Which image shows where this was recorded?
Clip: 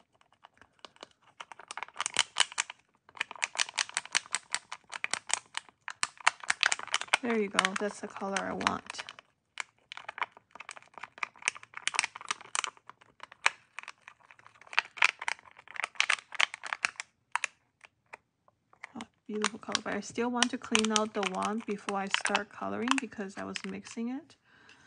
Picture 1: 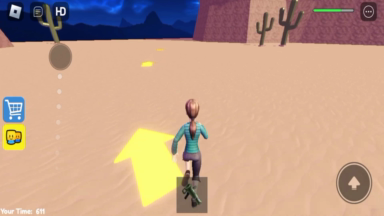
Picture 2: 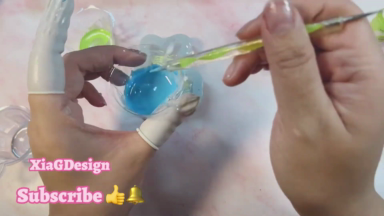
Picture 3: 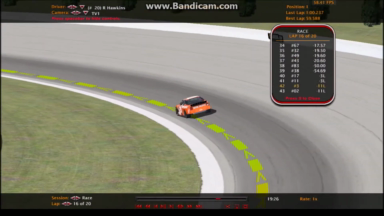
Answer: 2